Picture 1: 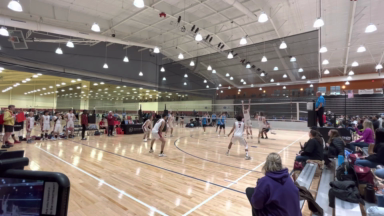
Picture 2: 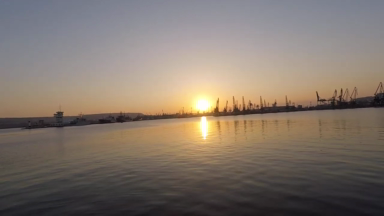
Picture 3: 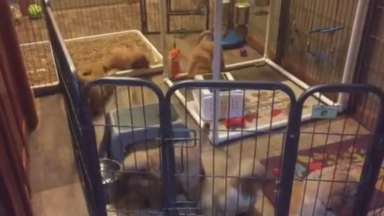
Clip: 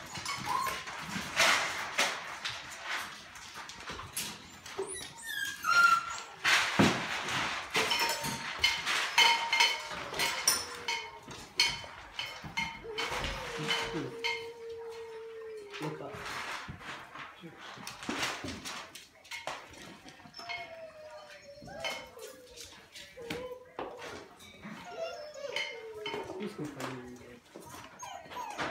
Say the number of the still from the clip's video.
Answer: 3